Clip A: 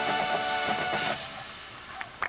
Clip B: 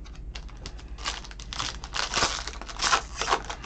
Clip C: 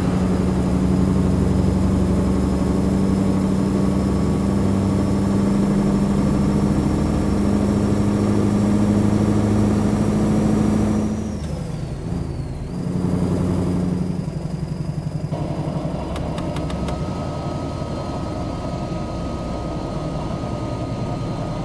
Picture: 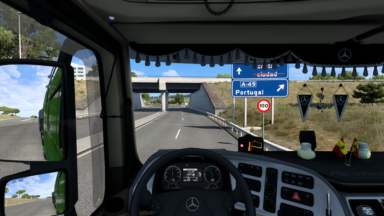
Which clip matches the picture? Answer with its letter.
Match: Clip C